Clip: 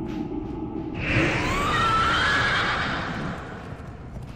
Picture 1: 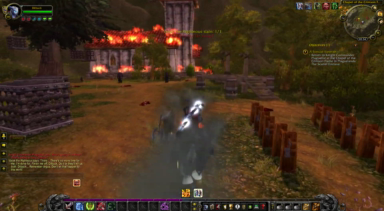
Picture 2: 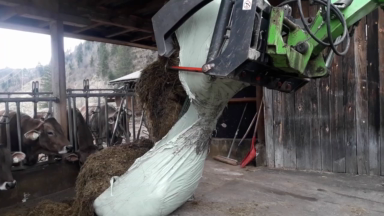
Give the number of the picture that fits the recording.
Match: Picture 1